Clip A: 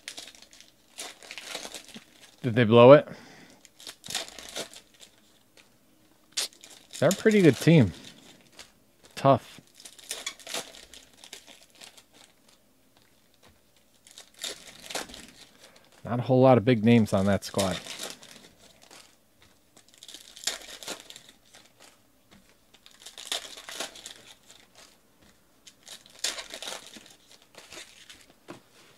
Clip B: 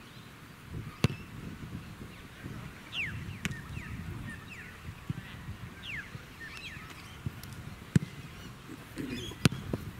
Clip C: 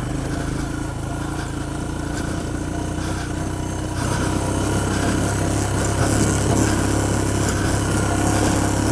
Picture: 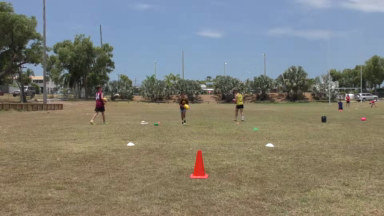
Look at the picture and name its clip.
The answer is B